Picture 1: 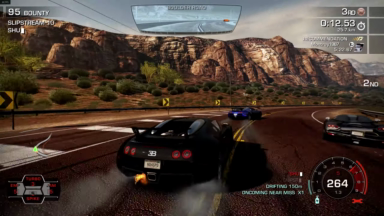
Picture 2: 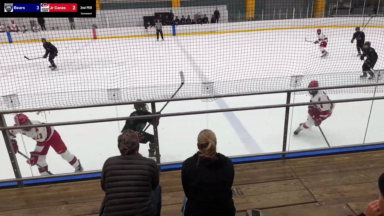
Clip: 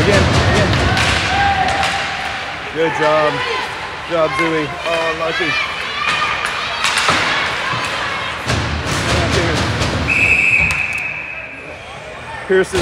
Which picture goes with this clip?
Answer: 2